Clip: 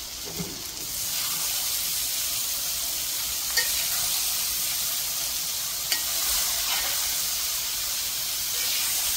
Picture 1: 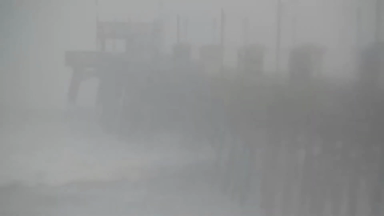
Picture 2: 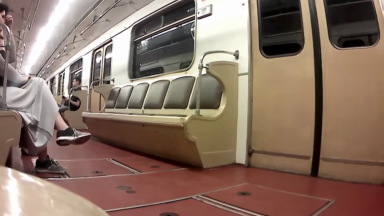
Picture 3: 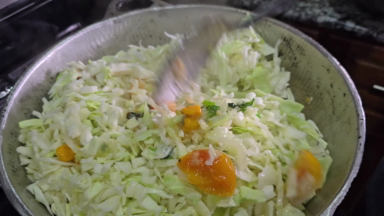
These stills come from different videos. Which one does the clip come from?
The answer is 3